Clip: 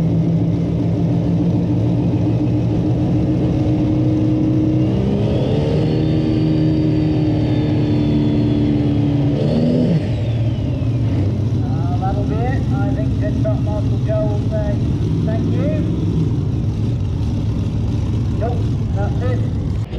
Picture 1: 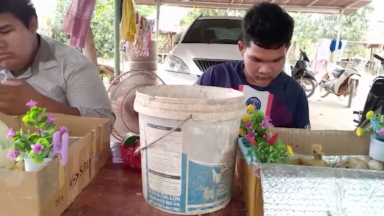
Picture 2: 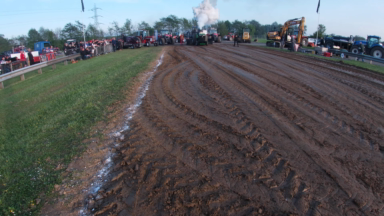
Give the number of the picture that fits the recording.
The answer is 2